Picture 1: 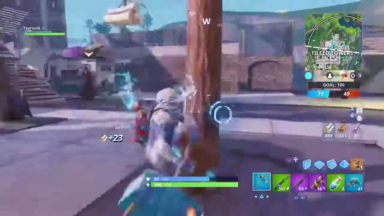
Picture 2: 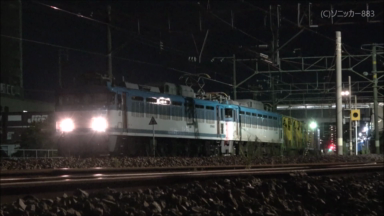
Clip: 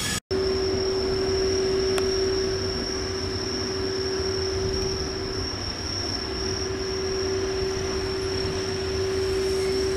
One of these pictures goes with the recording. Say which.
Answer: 2